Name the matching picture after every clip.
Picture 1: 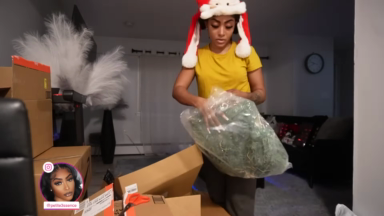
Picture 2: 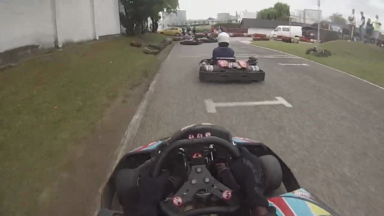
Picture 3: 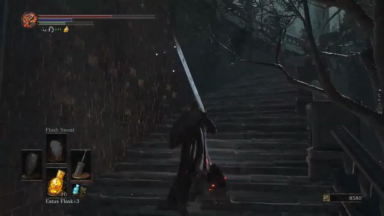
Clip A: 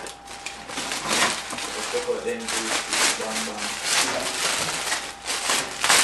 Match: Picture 1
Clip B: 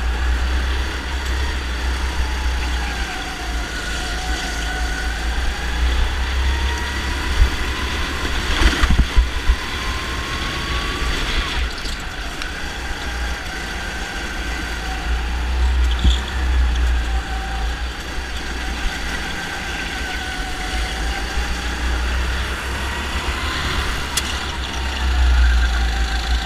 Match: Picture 2